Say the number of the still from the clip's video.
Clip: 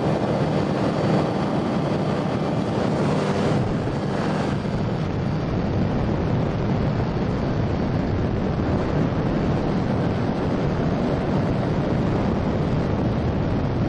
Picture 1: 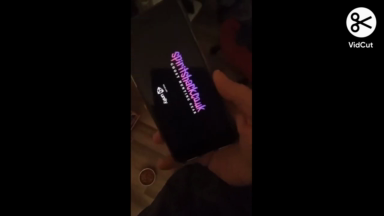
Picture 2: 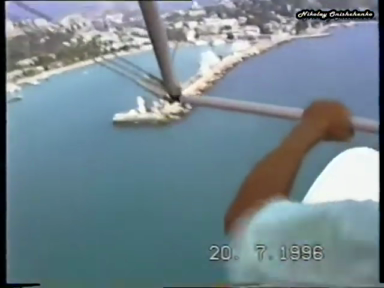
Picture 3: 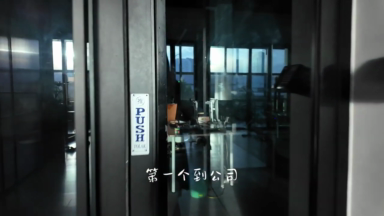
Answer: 2